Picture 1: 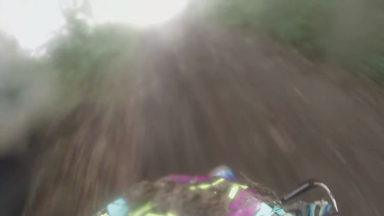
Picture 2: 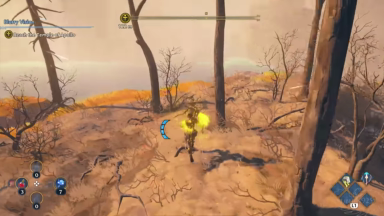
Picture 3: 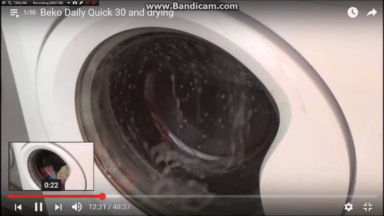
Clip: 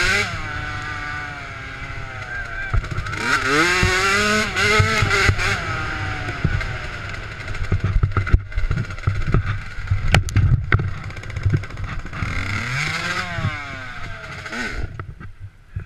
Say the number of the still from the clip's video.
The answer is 1